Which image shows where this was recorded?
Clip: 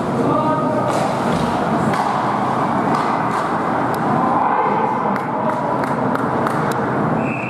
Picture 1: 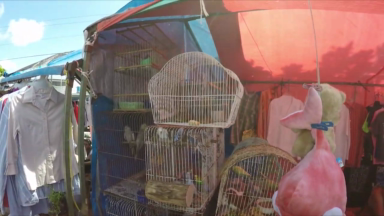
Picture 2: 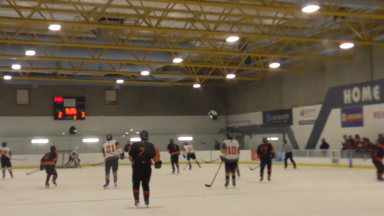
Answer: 2